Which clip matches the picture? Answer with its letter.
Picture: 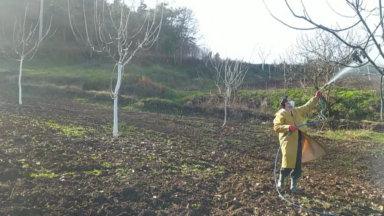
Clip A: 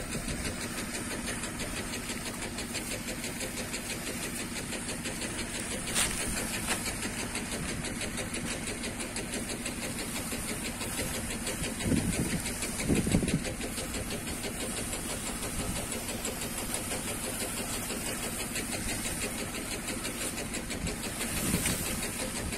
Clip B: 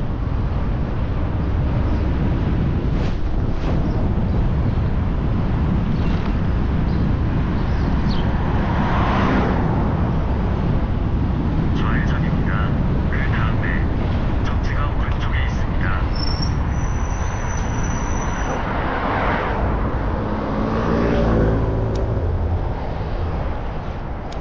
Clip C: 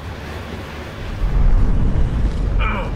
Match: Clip A